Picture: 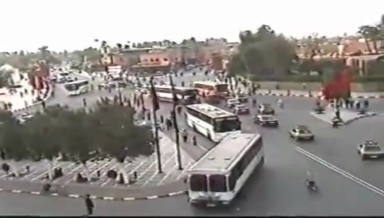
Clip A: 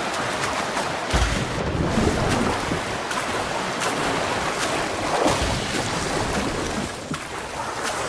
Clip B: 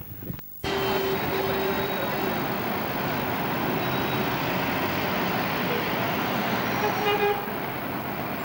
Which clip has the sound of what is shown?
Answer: B